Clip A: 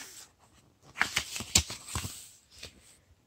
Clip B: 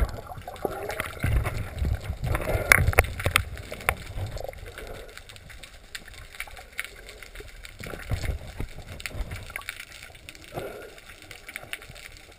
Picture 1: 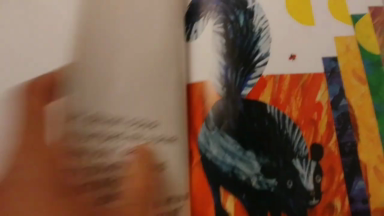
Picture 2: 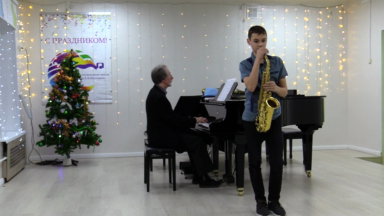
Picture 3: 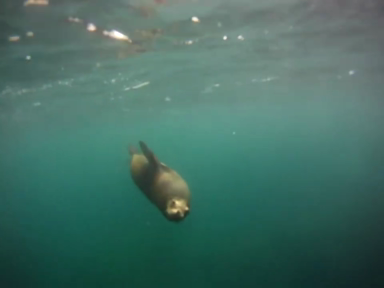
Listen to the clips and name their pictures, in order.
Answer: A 1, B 3